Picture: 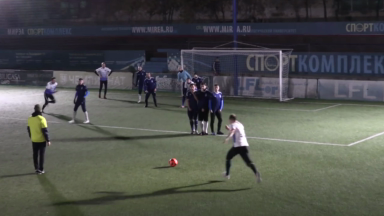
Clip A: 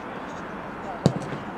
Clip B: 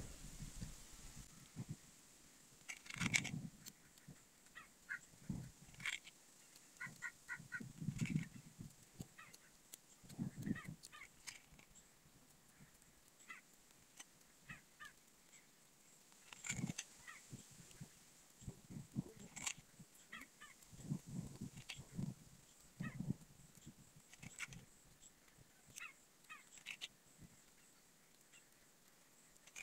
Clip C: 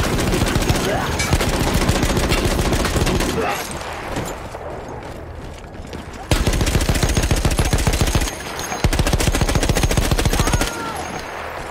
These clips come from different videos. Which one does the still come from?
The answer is A